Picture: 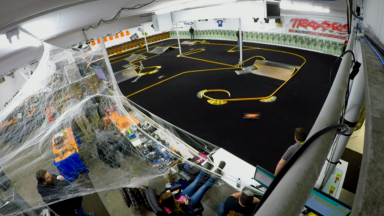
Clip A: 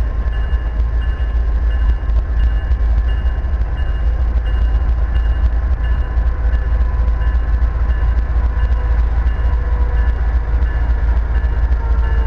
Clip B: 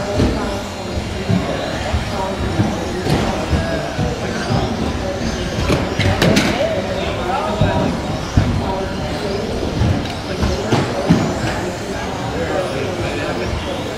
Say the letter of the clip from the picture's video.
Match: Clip B